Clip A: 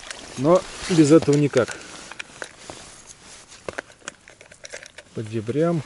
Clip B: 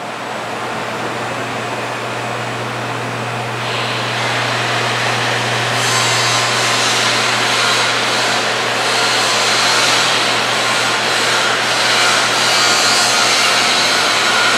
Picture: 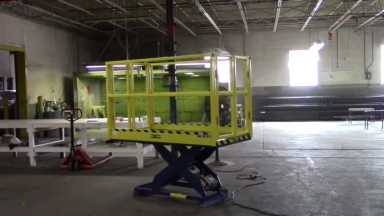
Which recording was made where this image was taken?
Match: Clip B